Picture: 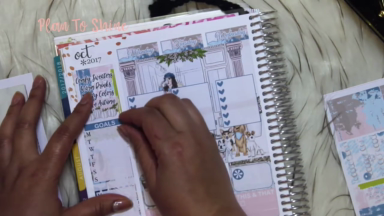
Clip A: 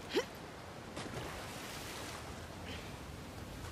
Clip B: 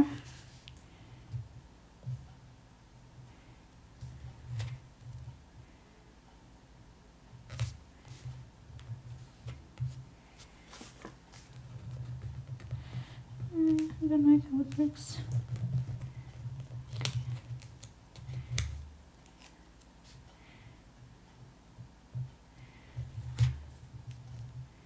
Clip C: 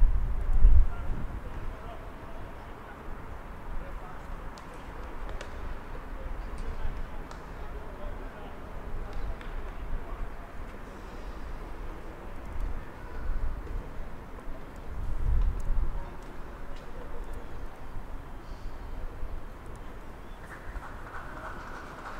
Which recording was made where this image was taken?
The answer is B